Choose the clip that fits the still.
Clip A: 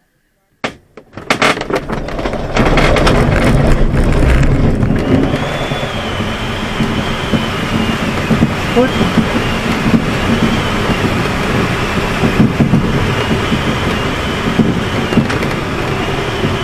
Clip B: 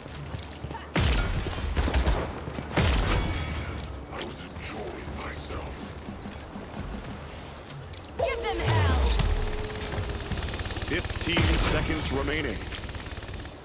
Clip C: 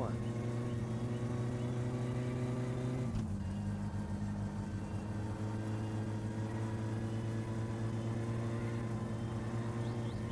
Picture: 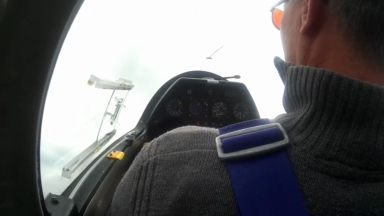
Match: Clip A